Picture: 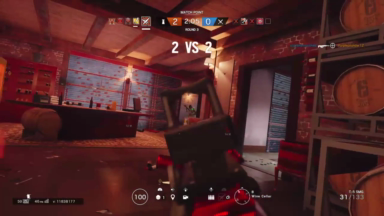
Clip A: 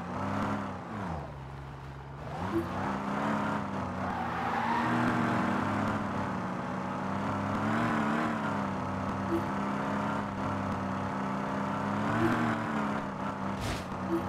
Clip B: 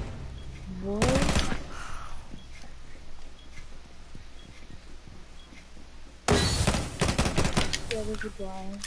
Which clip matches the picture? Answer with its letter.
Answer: B